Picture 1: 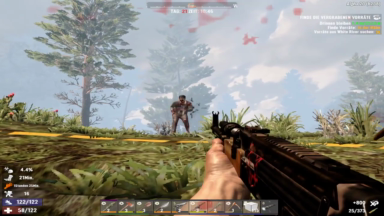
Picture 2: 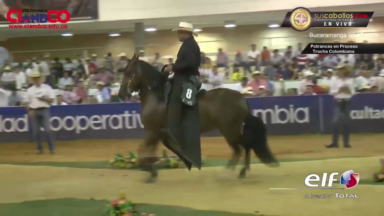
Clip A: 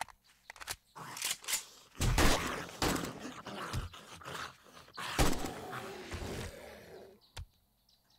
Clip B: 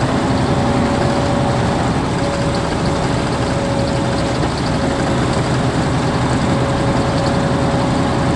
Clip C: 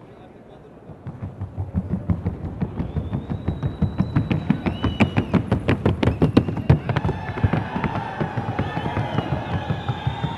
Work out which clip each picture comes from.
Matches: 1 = A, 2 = C